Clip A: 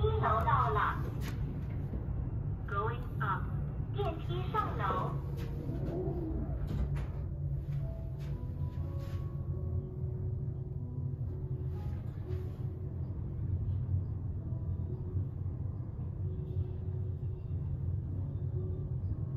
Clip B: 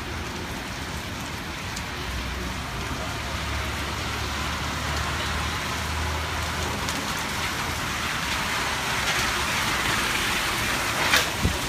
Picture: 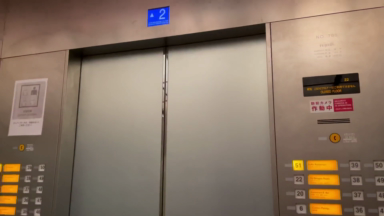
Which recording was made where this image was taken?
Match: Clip A